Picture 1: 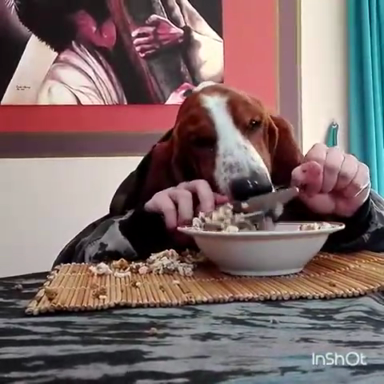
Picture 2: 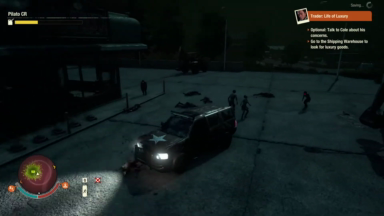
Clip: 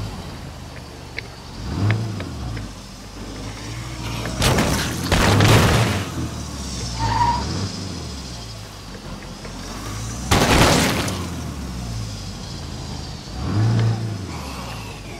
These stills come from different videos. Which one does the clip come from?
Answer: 2